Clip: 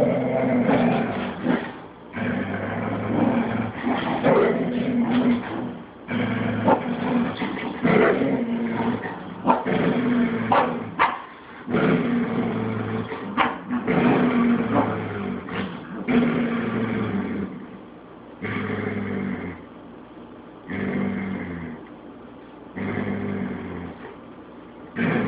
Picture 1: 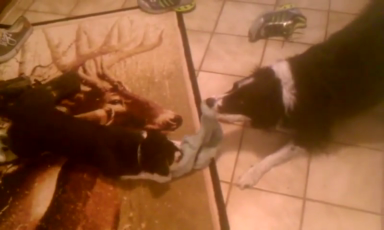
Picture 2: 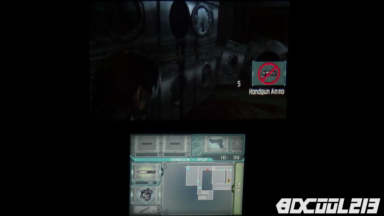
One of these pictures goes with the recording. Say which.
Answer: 1